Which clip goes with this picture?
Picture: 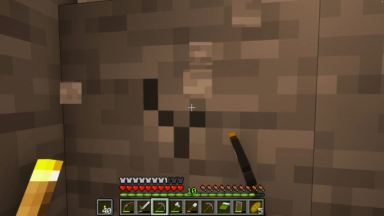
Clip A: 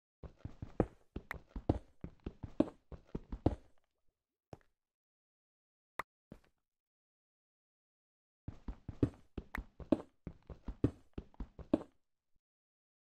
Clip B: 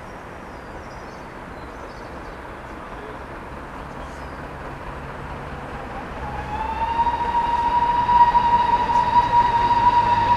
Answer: A